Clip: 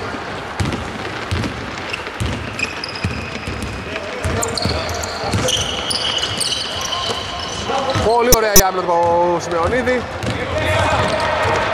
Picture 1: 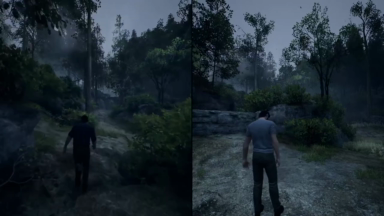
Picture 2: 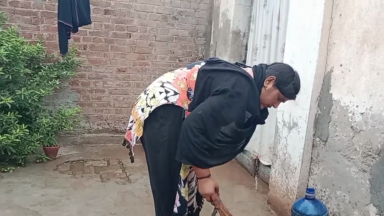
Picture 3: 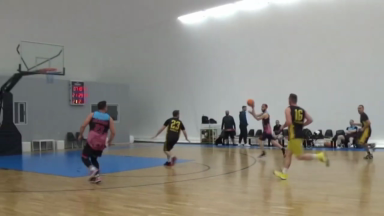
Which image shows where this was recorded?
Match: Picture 3